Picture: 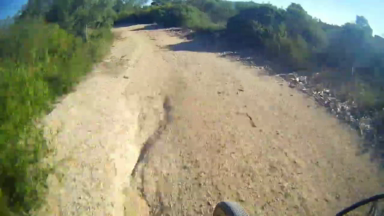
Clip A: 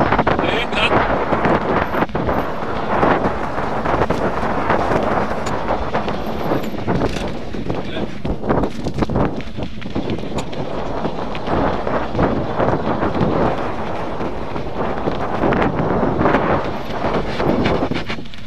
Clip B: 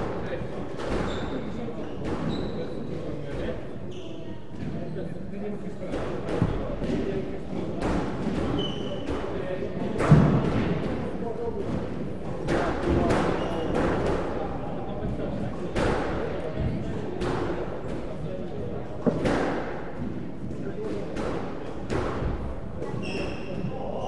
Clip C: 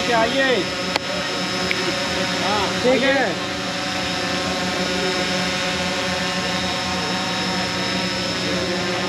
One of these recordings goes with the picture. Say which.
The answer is A